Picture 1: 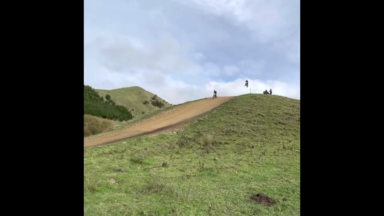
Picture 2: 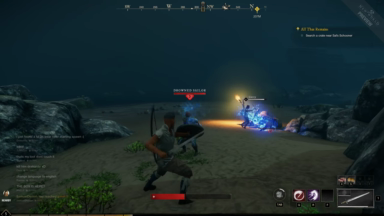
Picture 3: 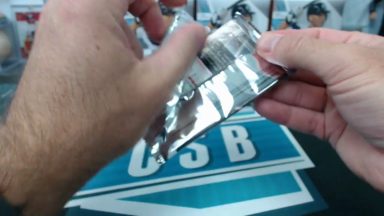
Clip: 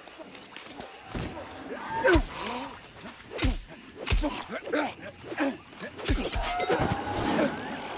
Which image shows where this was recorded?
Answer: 2